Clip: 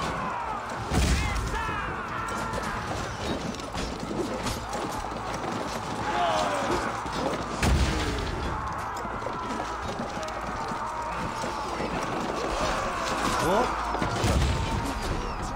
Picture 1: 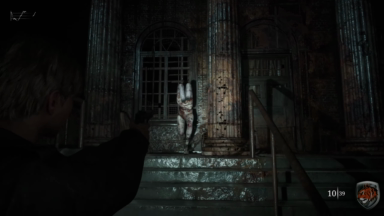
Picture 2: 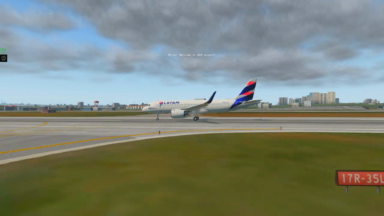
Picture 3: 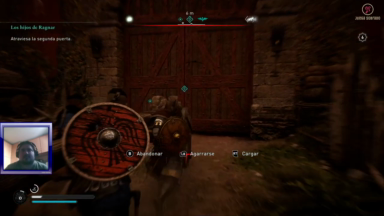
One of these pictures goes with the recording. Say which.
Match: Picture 3